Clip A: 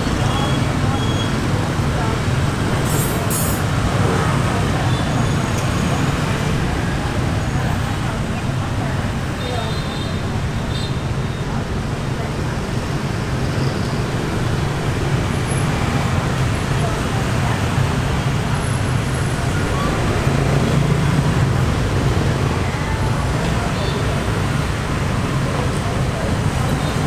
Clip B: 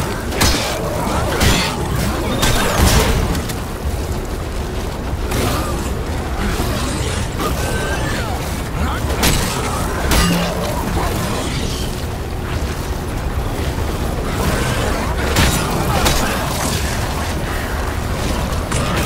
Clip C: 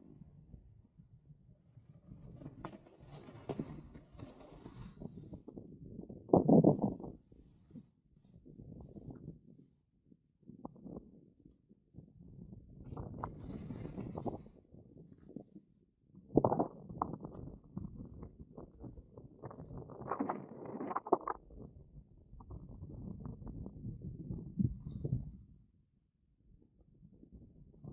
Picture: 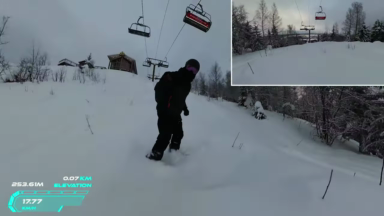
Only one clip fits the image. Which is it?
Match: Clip C